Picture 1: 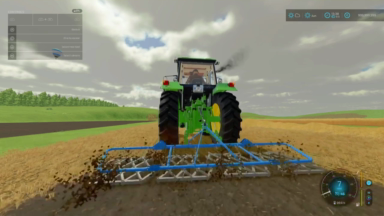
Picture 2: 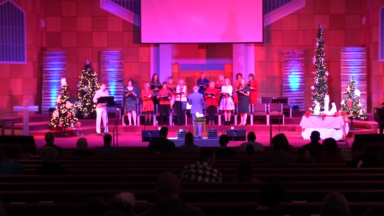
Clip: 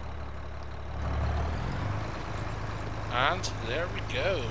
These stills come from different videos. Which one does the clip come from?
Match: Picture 1